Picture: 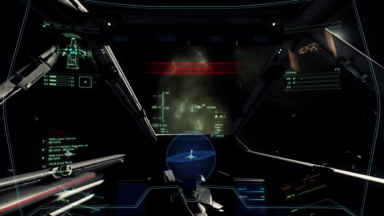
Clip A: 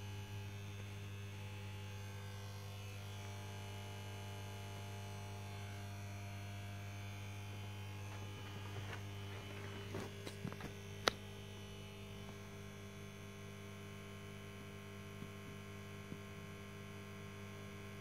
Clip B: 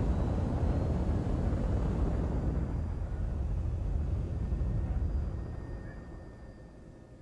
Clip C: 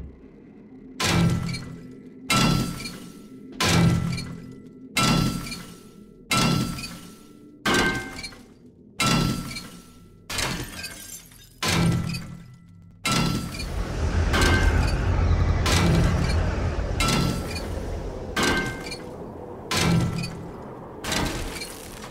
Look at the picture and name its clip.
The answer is B